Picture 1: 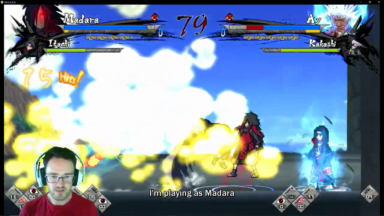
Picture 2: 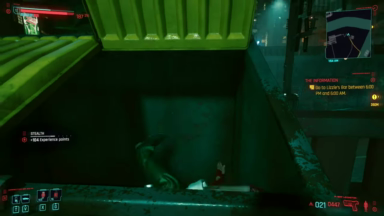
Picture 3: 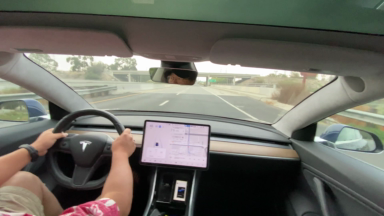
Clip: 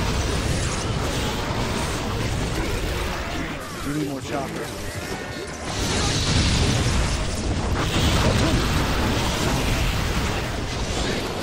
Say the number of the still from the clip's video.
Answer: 1